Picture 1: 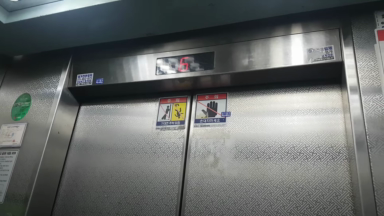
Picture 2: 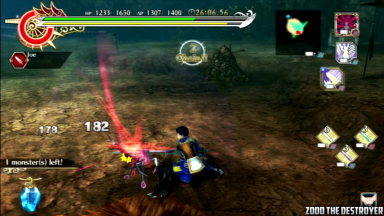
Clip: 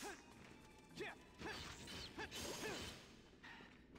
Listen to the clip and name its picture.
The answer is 2